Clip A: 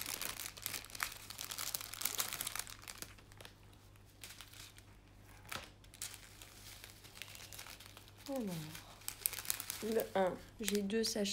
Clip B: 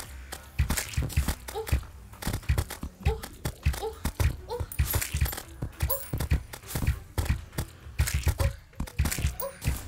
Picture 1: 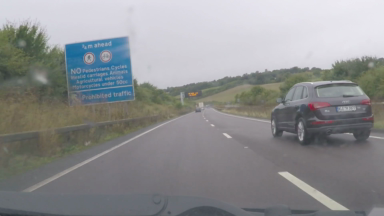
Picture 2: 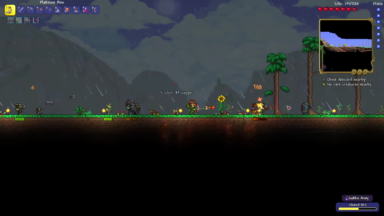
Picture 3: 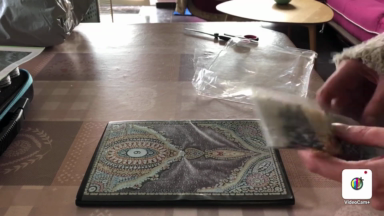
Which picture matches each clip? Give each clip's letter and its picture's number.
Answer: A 3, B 2